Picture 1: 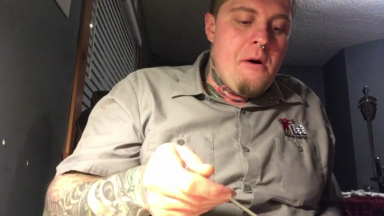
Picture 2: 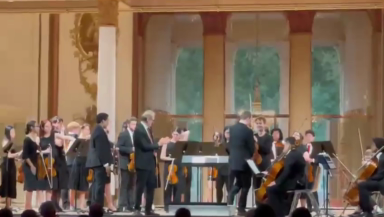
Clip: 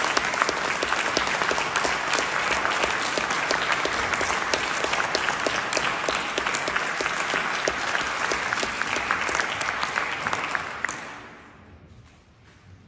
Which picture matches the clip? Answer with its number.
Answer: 2